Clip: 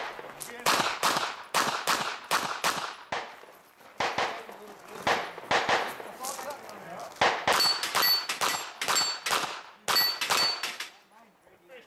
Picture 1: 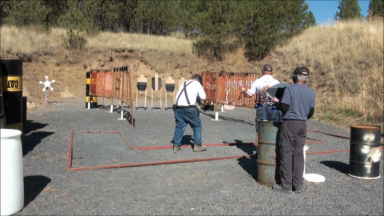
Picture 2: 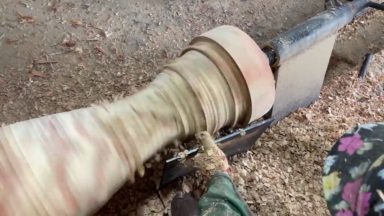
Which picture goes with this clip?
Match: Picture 1